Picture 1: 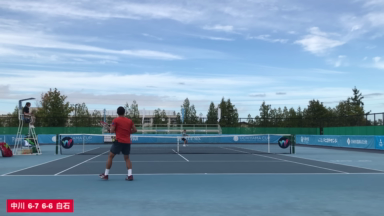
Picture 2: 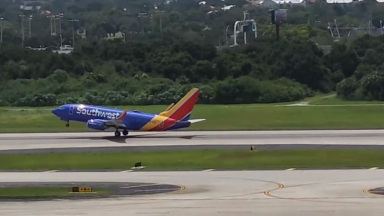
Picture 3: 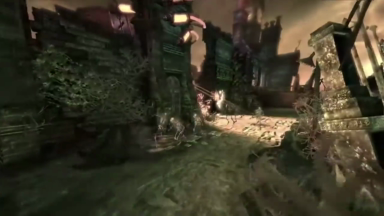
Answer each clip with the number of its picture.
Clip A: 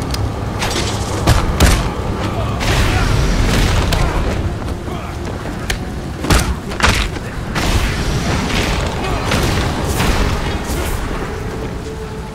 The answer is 3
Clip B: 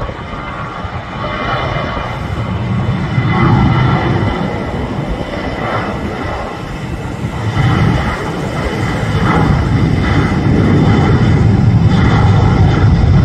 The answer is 2